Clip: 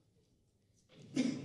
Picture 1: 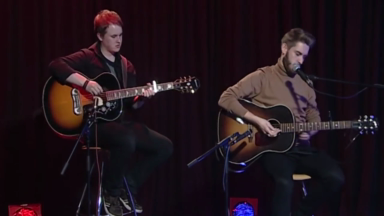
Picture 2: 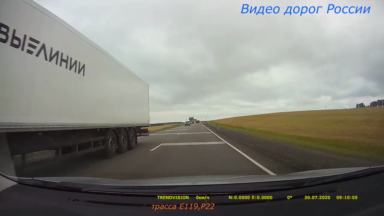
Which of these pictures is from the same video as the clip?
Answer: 1